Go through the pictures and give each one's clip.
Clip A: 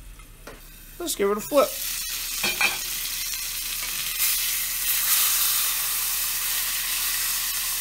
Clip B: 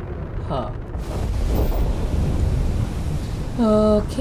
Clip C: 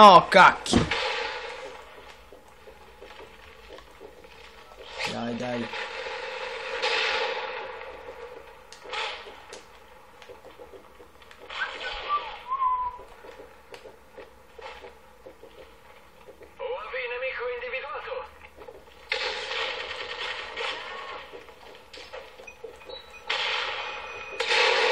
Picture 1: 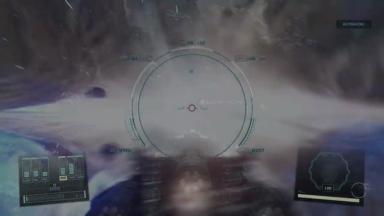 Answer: B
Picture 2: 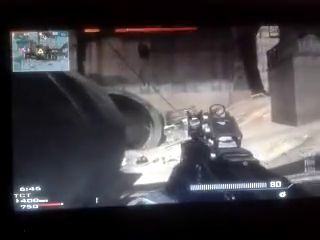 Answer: C